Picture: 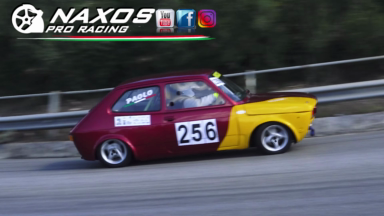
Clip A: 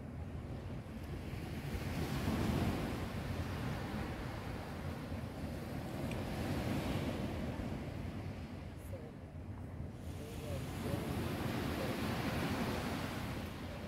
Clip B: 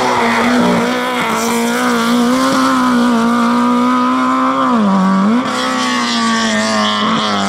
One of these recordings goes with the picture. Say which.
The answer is B